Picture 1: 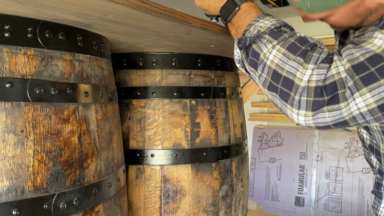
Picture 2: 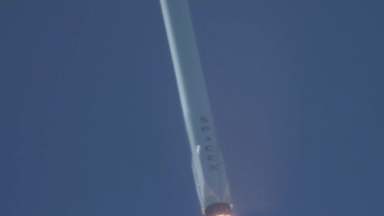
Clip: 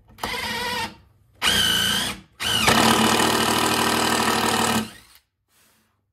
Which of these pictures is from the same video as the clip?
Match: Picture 1